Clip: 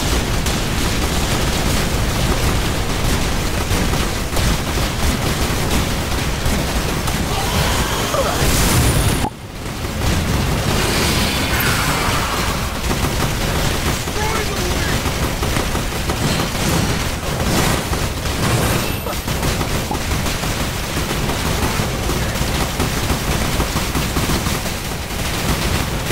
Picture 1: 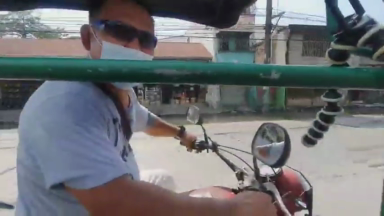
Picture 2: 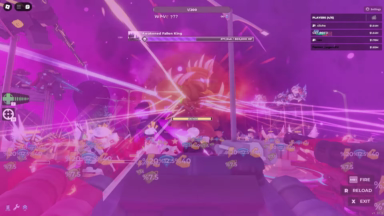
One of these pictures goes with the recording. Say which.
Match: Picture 2